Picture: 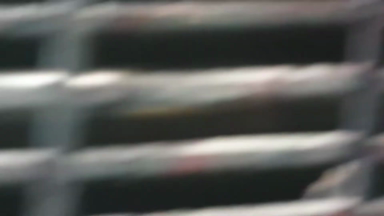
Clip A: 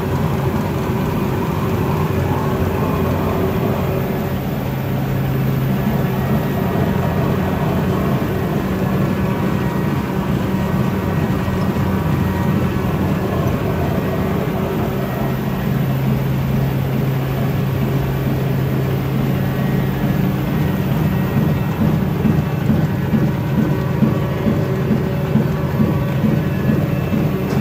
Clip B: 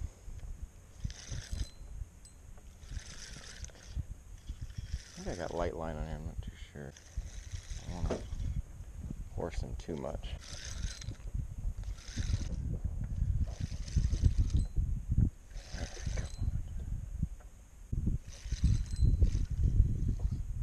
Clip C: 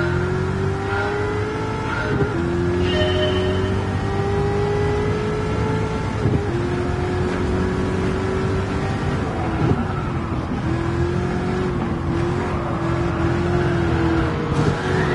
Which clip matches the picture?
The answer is A